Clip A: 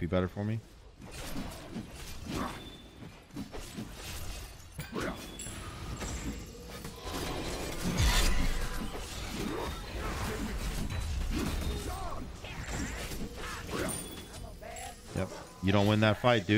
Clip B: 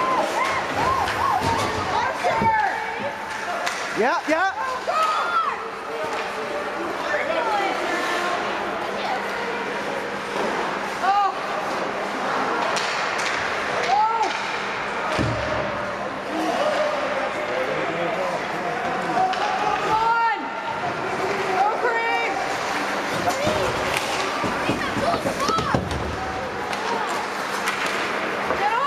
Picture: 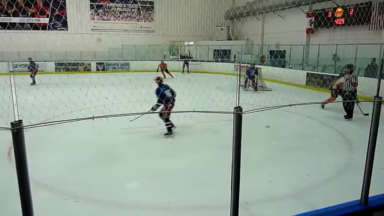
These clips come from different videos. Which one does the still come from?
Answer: B